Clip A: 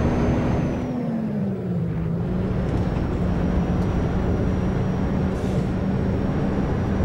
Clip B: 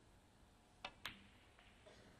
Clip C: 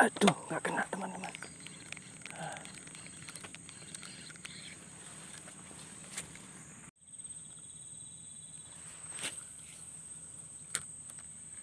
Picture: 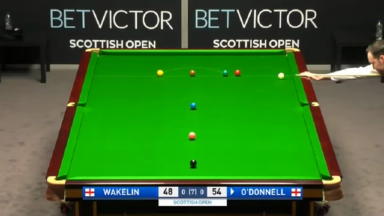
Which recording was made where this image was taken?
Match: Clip B